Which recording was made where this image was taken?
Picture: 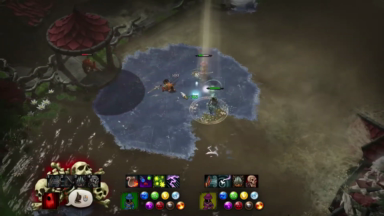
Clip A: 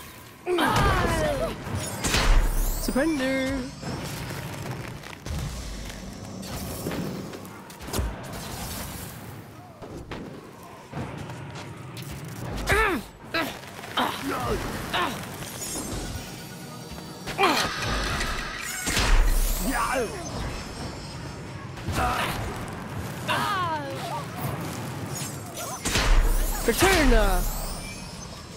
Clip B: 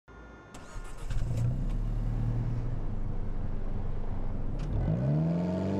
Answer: A